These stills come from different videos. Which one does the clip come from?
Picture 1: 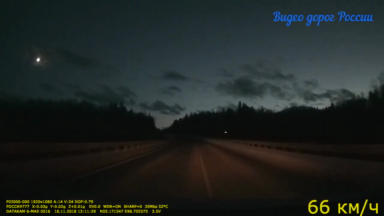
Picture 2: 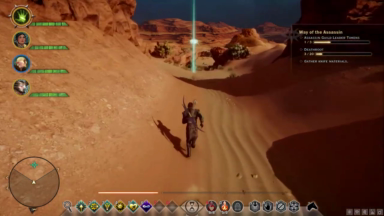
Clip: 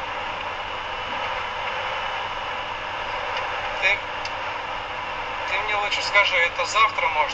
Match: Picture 1